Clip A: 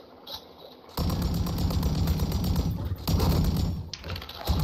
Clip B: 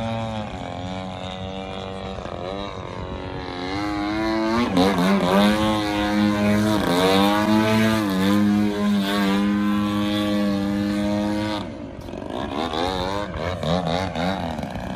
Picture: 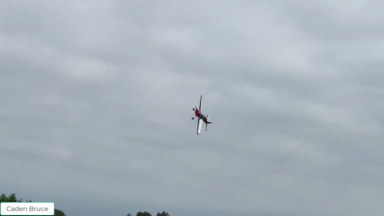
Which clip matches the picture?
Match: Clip B